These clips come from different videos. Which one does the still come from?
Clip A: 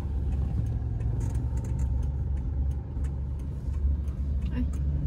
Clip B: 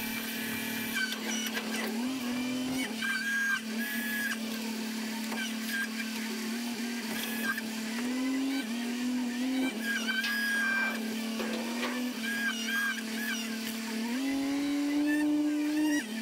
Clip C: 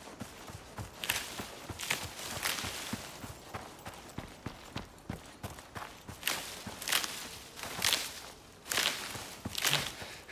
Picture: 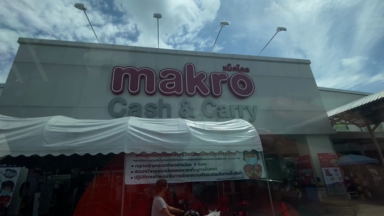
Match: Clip A